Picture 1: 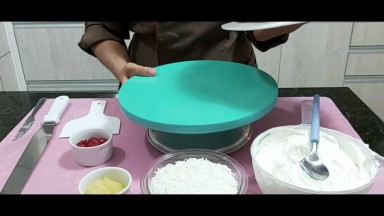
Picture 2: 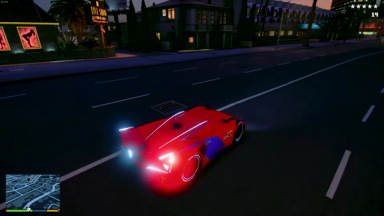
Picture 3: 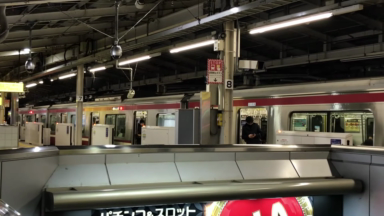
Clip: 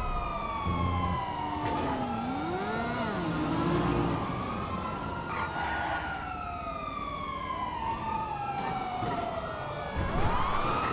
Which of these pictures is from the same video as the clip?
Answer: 2